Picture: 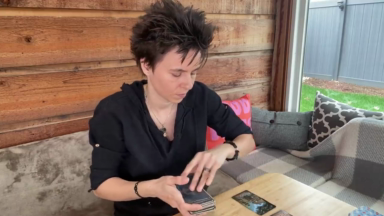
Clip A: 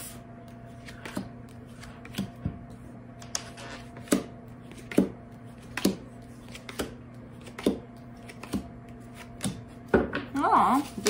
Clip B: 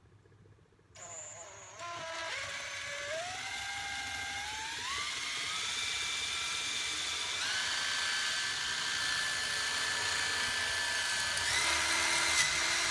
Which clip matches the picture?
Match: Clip A